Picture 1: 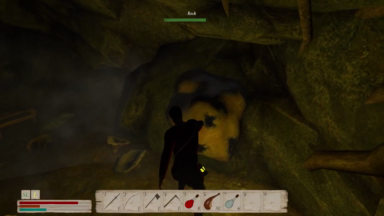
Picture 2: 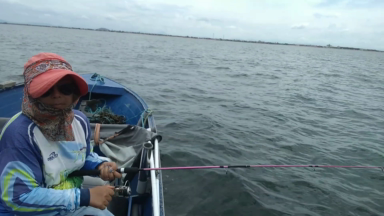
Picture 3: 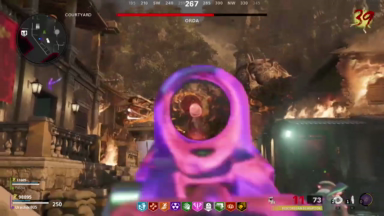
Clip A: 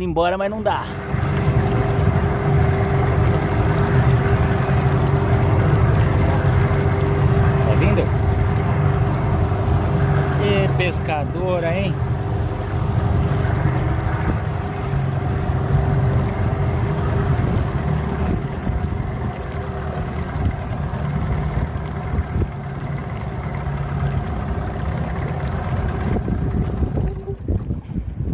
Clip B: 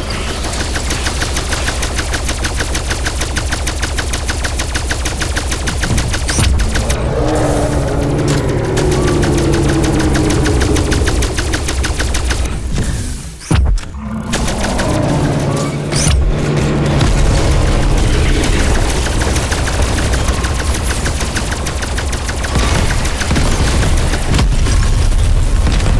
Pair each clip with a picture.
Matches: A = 2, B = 3